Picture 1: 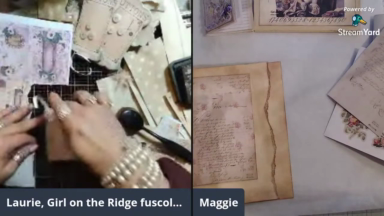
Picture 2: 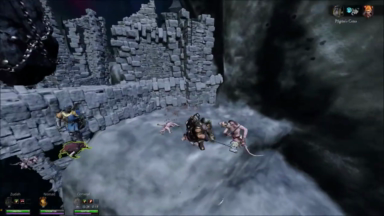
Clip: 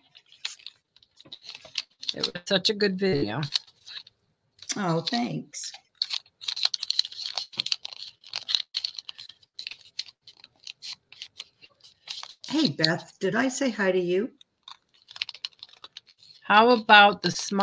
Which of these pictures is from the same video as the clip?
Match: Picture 1